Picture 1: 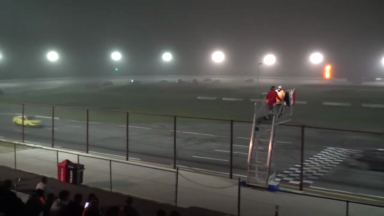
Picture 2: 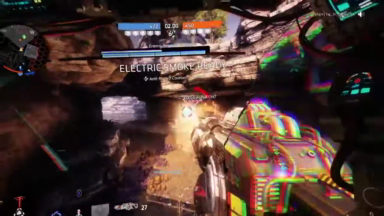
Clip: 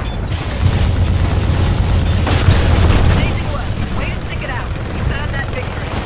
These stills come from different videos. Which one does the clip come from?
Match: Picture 2